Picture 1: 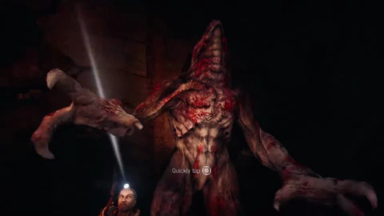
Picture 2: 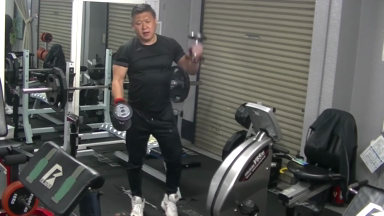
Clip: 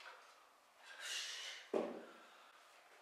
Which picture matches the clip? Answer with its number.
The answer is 2